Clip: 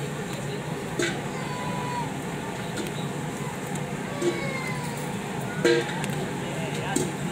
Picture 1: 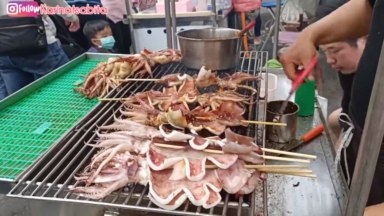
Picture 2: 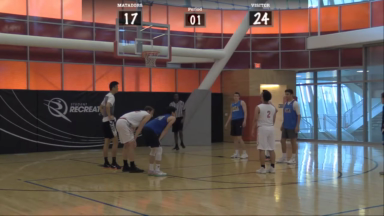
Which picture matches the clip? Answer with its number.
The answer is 1